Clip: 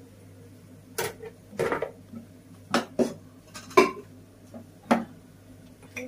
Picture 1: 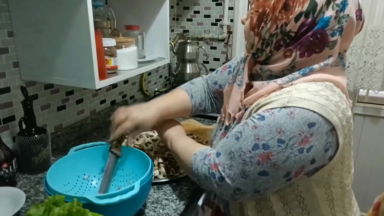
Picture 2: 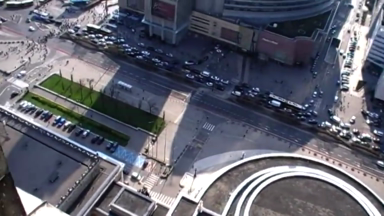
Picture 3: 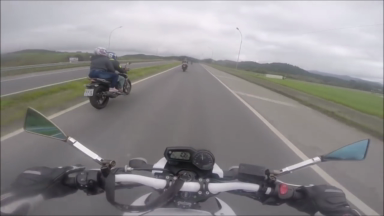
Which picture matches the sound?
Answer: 1